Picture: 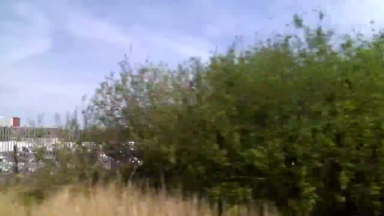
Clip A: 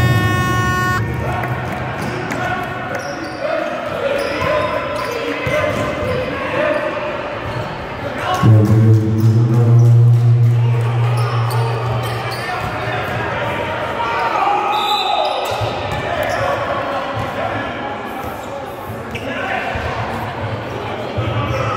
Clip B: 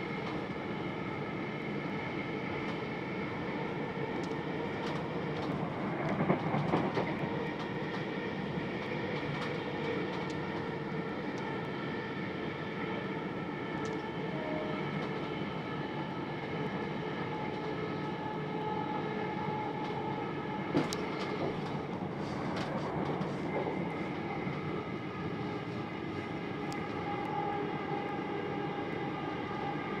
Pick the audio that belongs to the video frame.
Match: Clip B